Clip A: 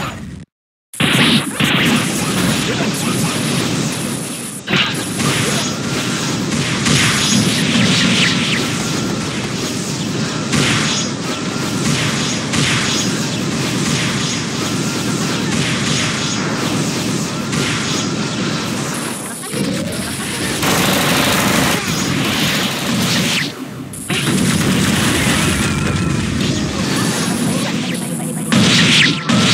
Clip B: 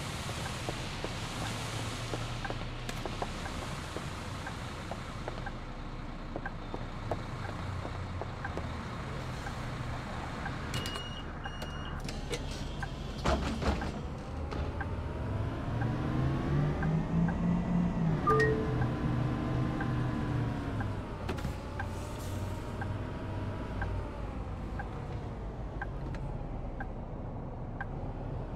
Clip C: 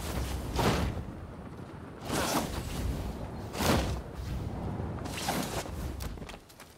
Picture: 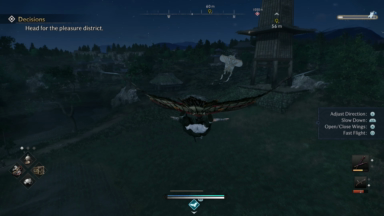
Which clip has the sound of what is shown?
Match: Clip C